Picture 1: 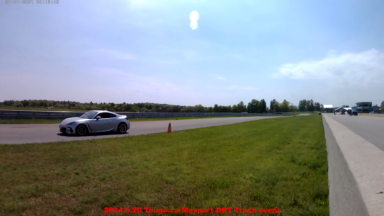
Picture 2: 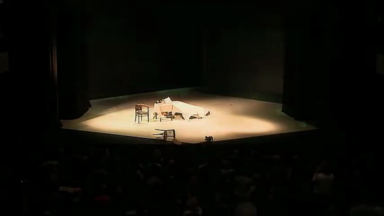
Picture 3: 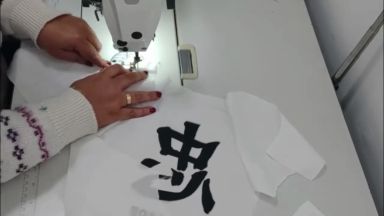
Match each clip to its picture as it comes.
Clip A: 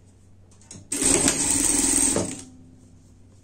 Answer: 3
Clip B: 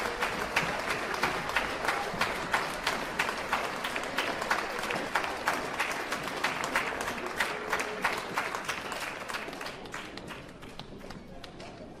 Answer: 2